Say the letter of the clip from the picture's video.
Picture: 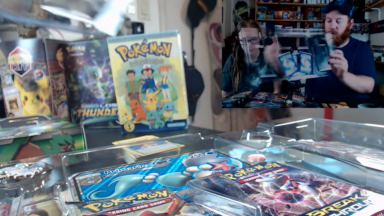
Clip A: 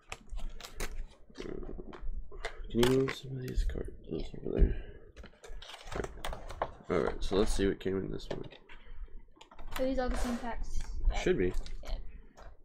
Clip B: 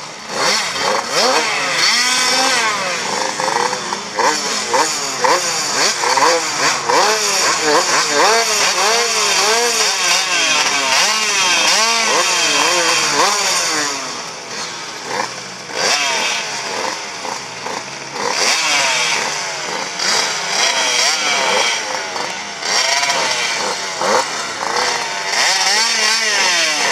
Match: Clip A